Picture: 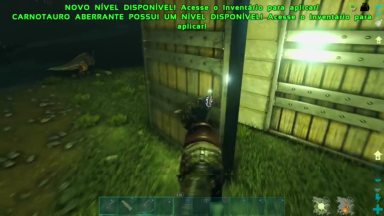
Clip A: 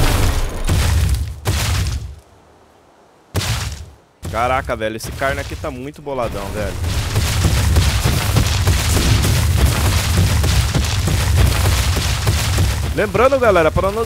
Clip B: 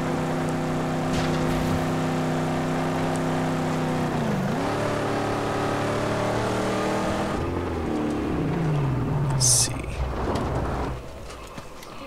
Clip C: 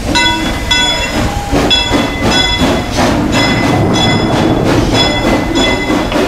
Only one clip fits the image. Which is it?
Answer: A